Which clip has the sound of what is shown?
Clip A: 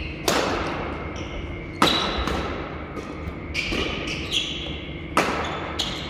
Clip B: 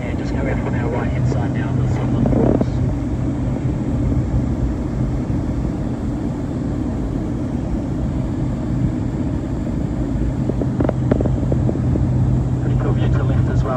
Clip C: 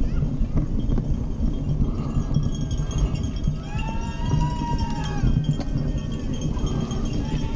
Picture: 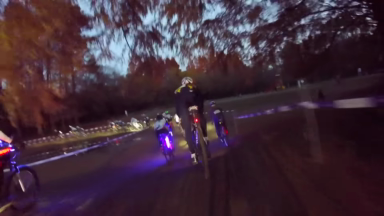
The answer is C